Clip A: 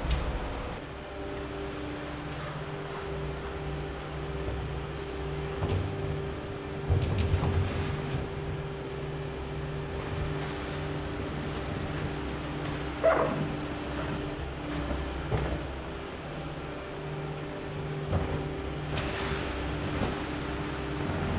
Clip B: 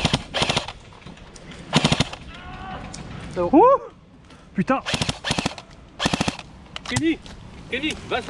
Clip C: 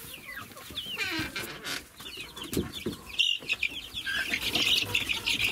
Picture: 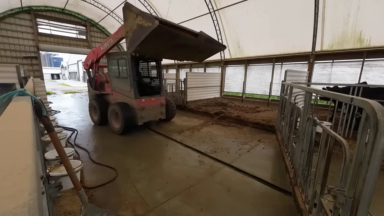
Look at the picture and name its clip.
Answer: A